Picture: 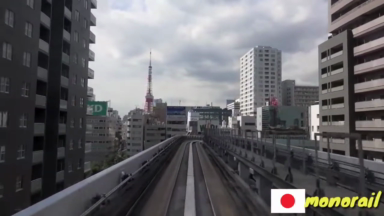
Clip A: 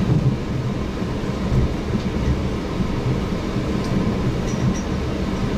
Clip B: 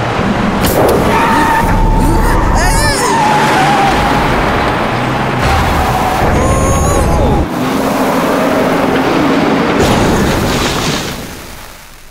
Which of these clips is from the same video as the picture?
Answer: A